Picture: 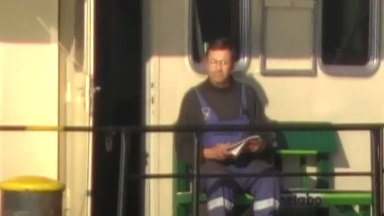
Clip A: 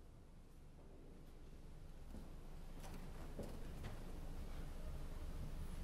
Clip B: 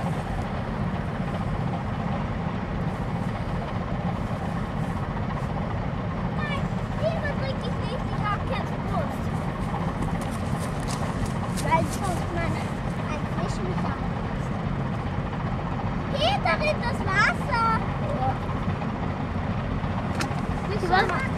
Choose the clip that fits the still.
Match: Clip B